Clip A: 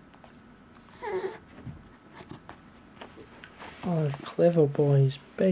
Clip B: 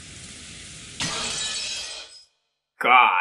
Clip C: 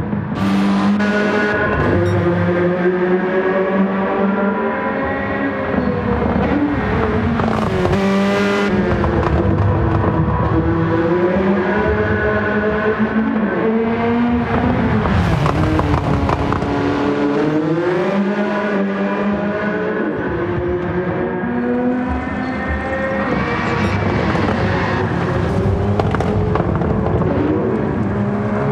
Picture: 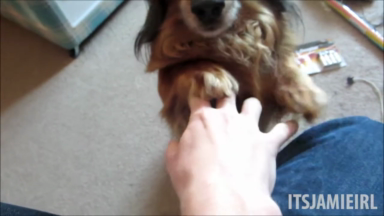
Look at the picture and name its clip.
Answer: A